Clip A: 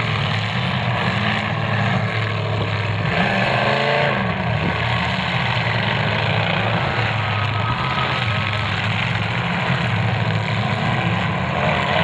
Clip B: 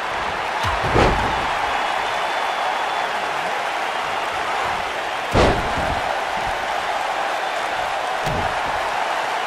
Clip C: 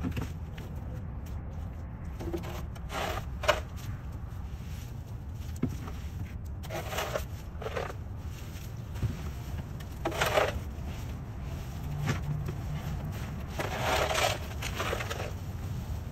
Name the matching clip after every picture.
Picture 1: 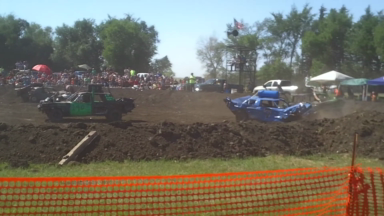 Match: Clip A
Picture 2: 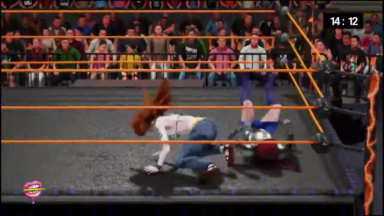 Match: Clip B